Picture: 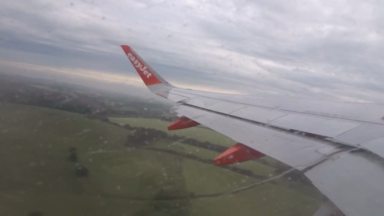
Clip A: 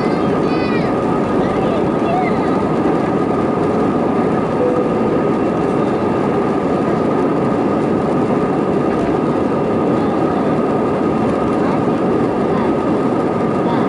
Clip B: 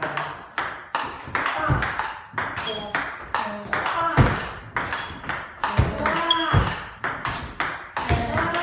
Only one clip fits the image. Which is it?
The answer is A